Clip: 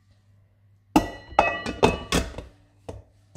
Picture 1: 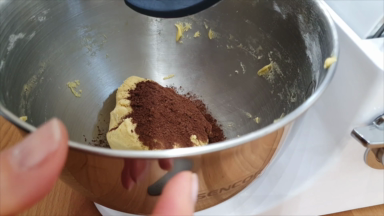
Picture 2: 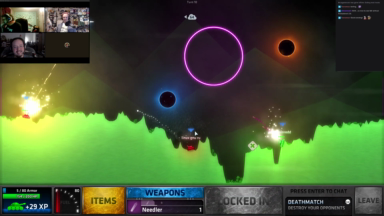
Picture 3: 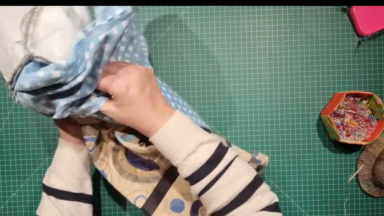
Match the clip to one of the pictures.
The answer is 1